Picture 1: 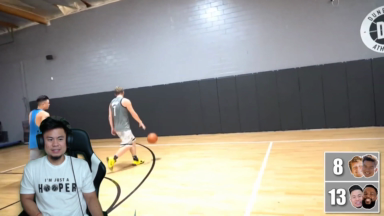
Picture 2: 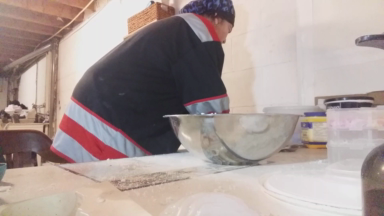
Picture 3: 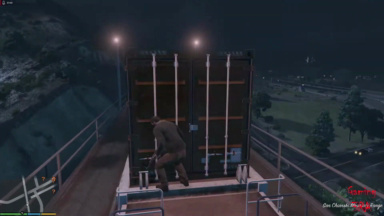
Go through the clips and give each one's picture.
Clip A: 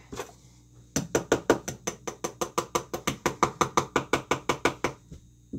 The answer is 2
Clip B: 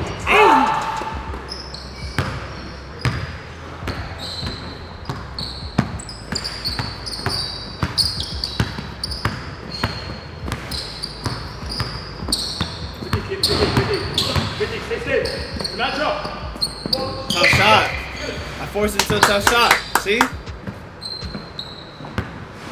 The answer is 1